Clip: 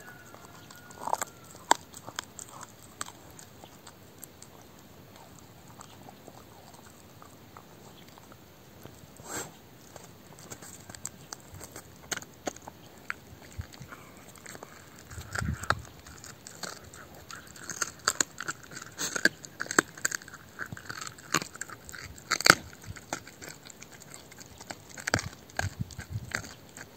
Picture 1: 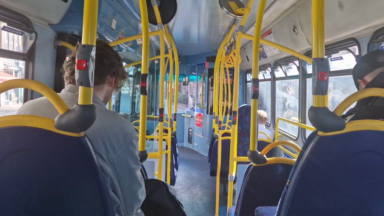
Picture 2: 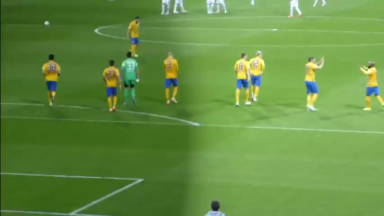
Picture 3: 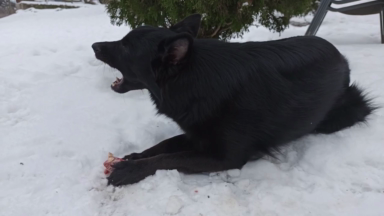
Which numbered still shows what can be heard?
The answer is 3